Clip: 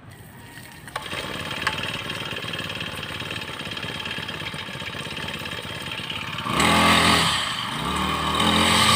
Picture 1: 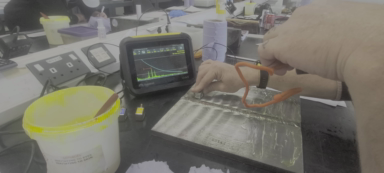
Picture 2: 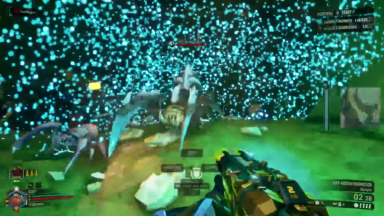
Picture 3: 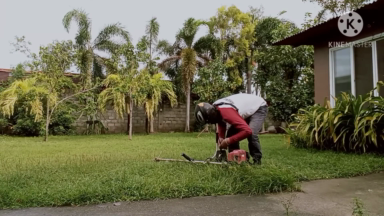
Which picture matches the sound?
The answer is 3